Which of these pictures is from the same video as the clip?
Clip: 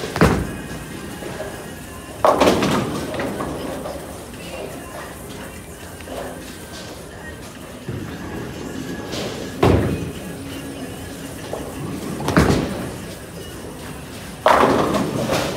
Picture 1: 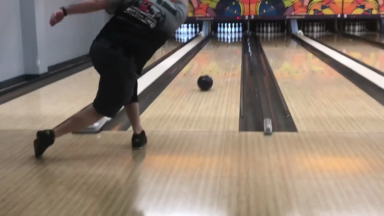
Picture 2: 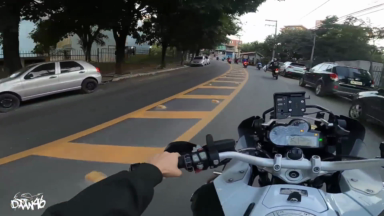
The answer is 1